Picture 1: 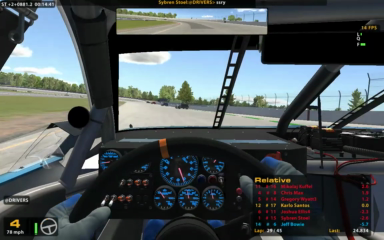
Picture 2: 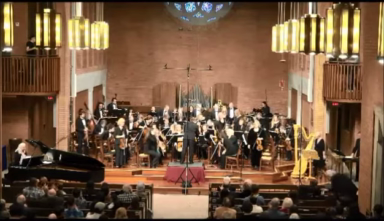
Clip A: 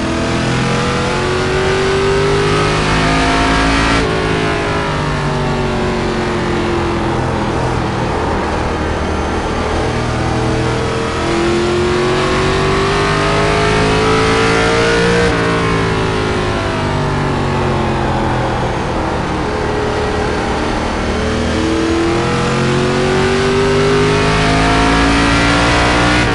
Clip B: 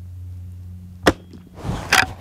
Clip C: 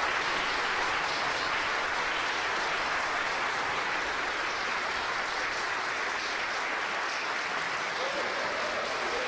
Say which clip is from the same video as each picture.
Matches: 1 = A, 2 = C